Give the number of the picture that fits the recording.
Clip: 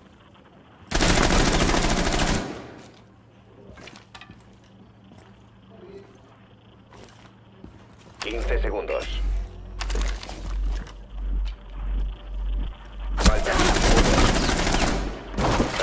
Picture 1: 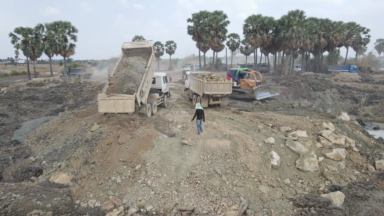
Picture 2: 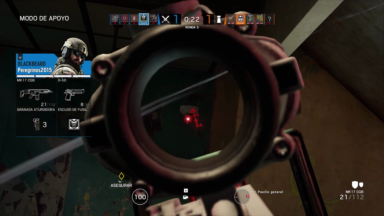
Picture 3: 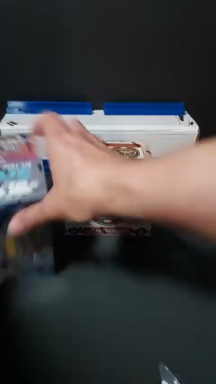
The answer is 2